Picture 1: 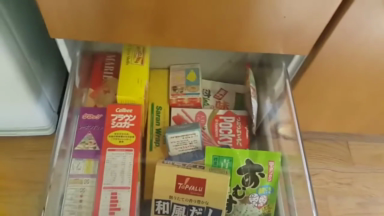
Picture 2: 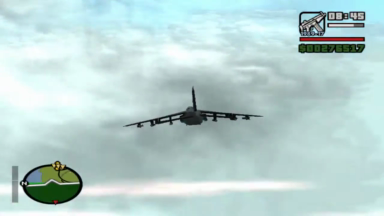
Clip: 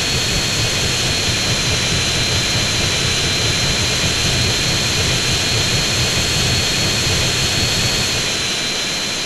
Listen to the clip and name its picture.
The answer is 2